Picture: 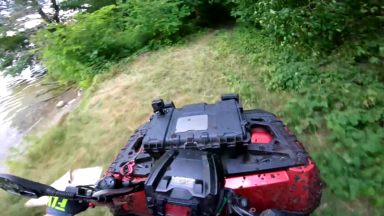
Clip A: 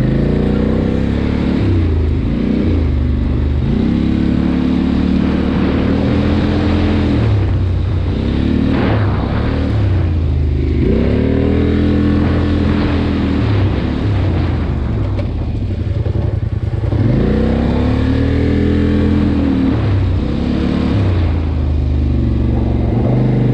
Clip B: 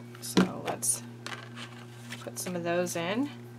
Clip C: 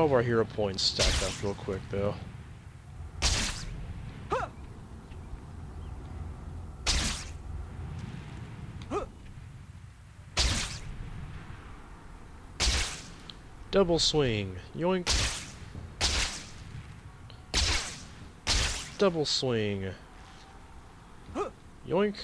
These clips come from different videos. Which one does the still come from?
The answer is A